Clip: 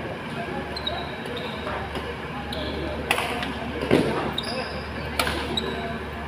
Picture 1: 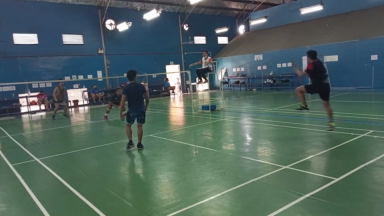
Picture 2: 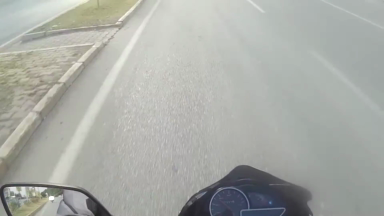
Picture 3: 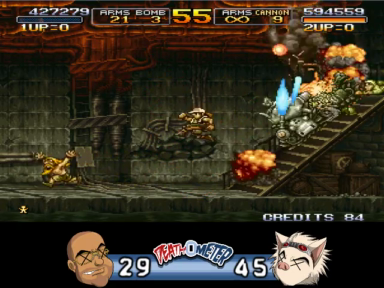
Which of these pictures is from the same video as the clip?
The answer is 1